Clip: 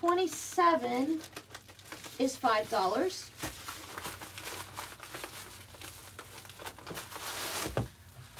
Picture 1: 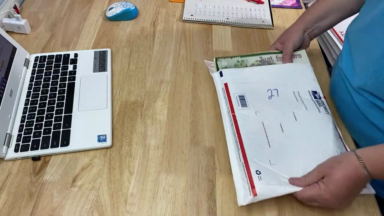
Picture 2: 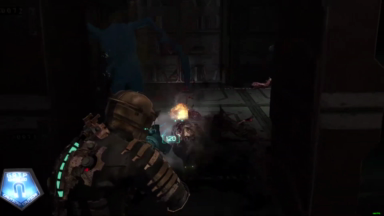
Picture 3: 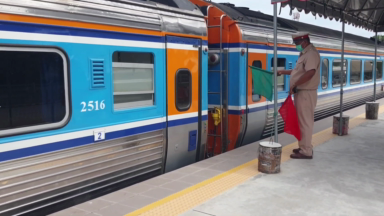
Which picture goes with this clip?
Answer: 1